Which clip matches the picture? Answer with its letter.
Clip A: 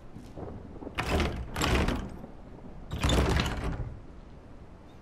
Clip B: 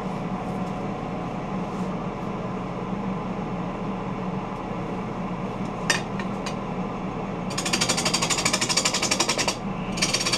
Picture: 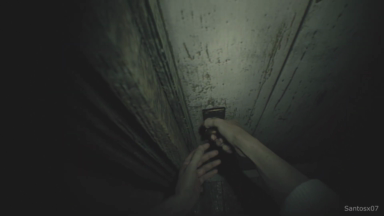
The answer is A